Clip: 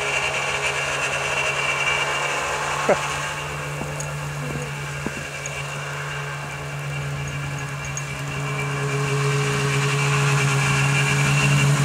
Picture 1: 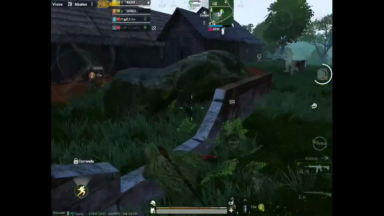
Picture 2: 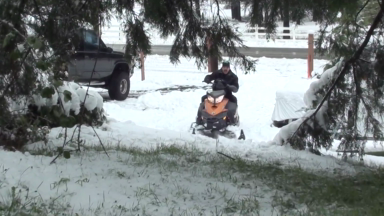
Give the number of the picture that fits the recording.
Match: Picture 2